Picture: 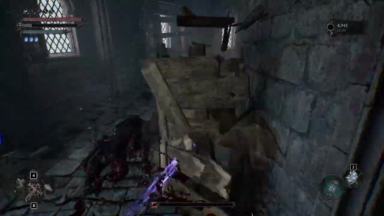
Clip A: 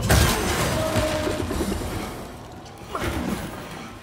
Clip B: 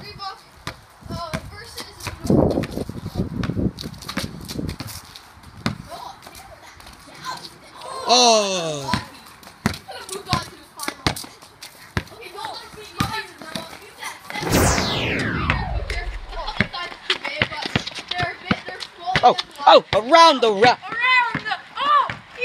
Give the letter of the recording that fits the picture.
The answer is A